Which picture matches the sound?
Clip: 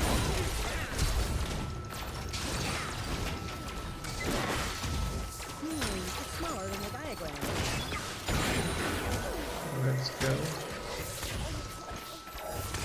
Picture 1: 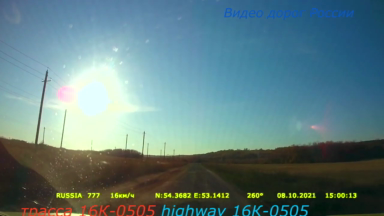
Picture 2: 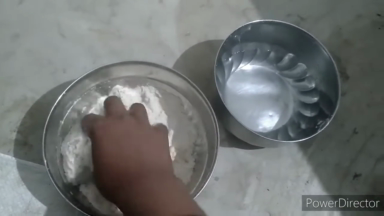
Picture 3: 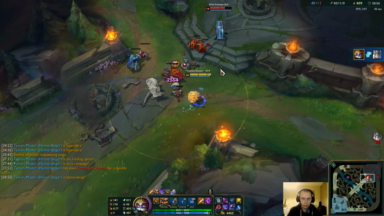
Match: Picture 3